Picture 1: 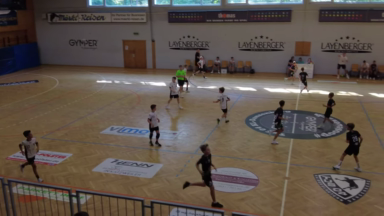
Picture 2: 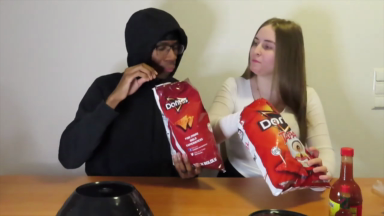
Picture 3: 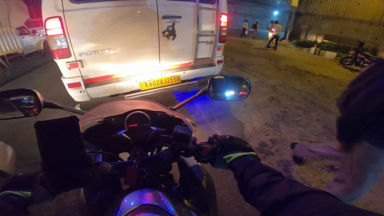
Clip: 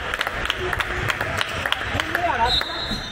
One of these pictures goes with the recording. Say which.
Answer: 1